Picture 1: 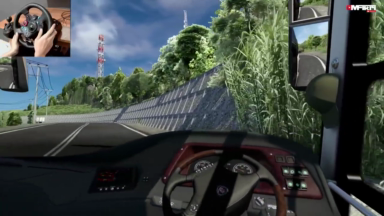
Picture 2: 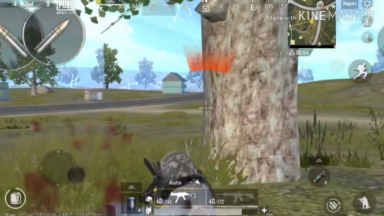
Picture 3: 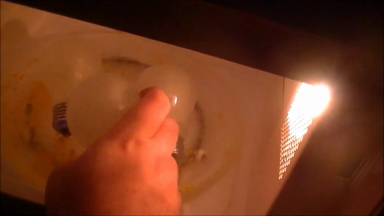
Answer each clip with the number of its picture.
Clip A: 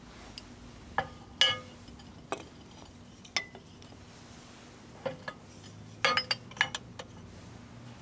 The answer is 3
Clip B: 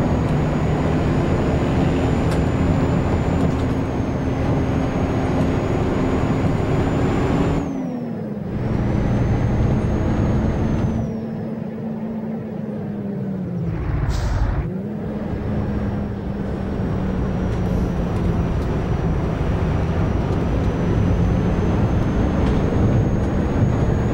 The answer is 1